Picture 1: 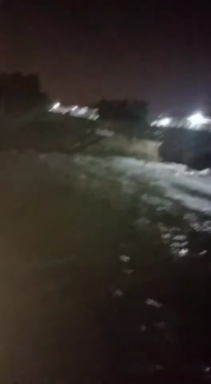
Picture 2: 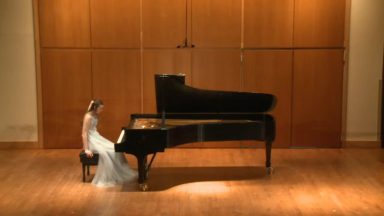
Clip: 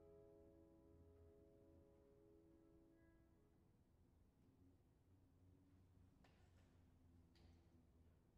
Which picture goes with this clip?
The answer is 2